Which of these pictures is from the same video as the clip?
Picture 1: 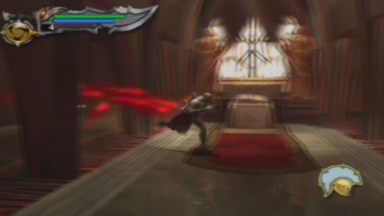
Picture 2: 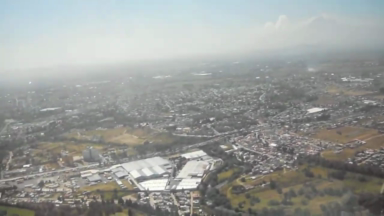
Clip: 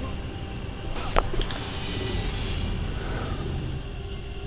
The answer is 1